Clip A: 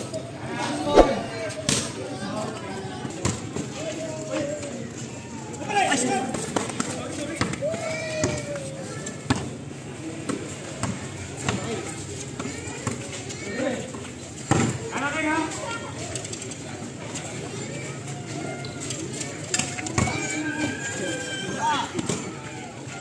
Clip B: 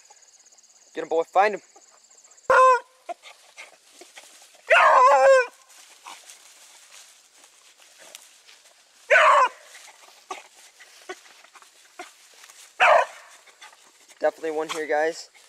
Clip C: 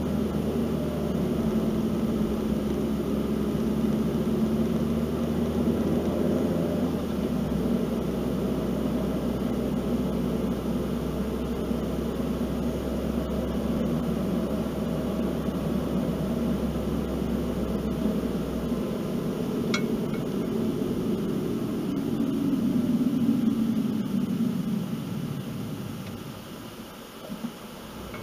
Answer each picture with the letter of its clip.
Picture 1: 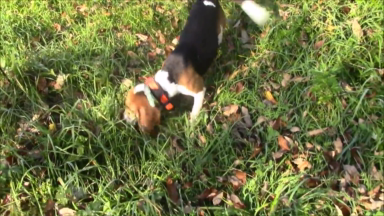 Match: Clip B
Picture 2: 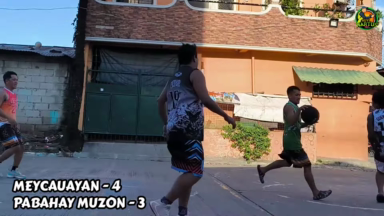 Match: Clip A